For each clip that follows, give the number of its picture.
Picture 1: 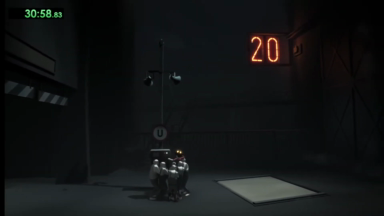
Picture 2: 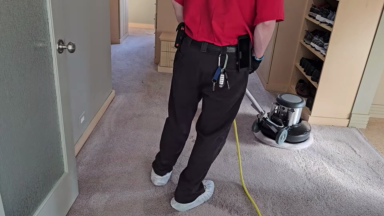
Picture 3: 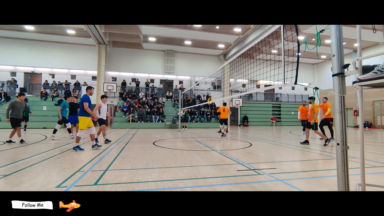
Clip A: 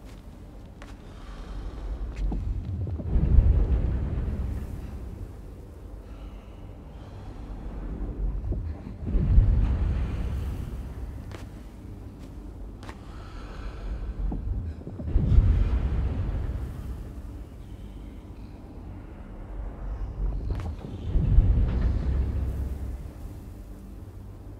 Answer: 1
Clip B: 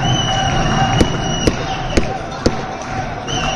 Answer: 3